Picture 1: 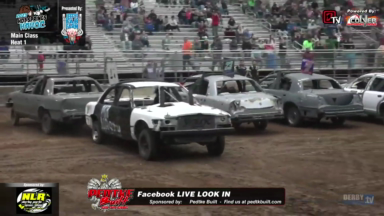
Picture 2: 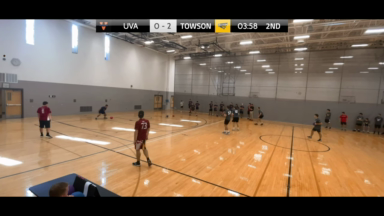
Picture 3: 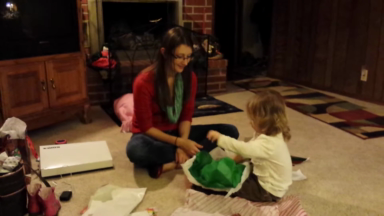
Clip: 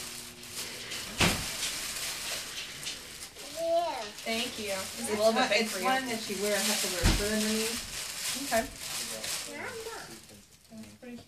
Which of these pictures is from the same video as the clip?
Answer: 3